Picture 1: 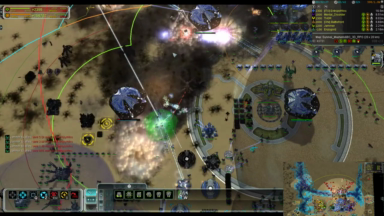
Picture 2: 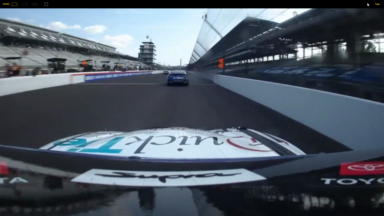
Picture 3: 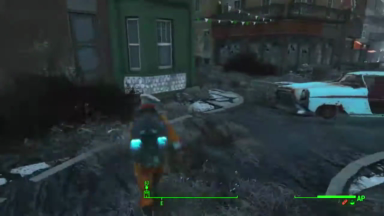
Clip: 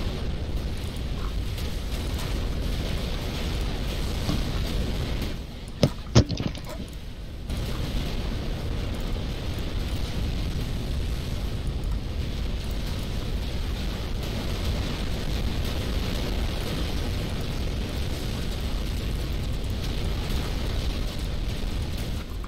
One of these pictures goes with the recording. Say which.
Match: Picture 1